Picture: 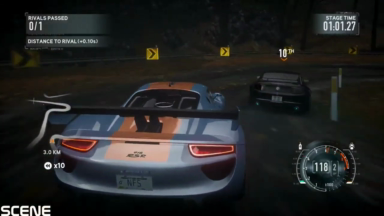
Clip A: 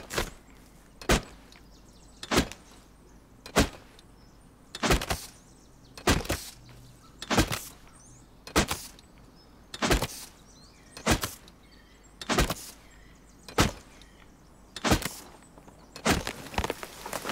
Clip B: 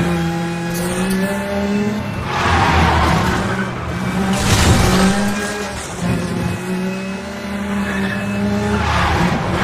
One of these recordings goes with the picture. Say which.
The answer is B